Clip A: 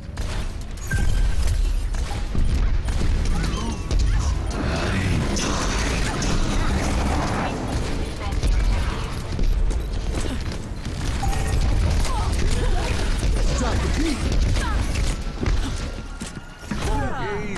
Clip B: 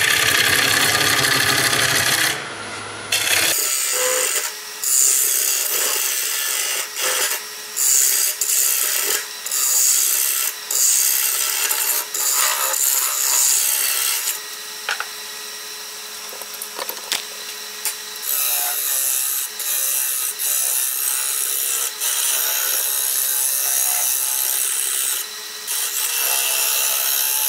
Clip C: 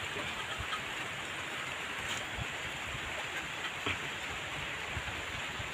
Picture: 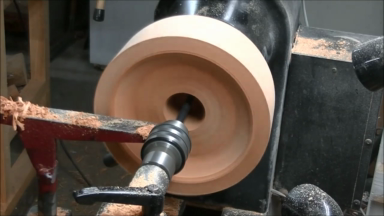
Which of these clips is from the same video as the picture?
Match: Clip B